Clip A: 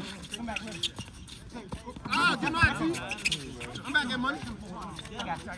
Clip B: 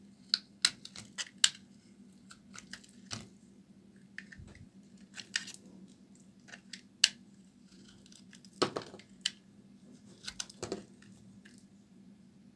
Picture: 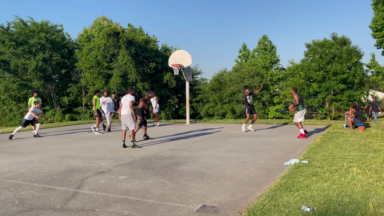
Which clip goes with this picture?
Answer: A